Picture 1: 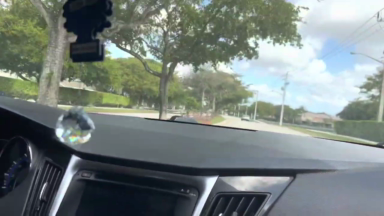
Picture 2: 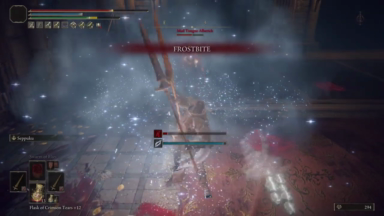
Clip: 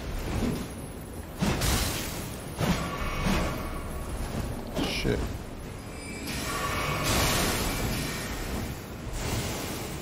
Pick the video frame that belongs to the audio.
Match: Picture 2